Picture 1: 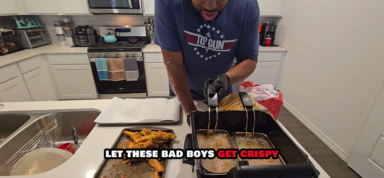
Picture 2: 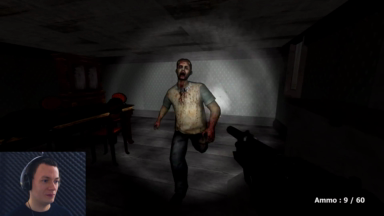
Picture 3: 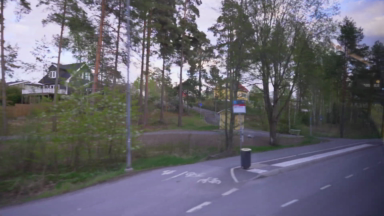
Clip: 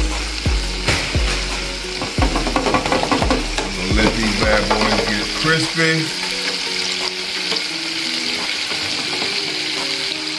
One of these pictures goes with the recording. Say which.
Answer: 1